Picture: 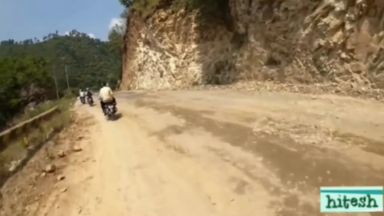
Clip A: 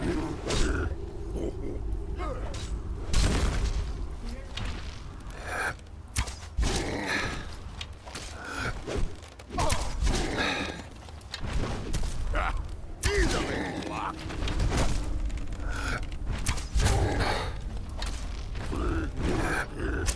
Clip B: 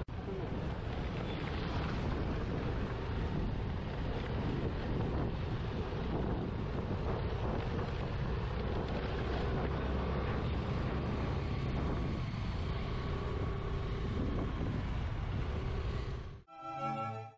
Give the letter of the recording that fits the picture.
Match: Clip B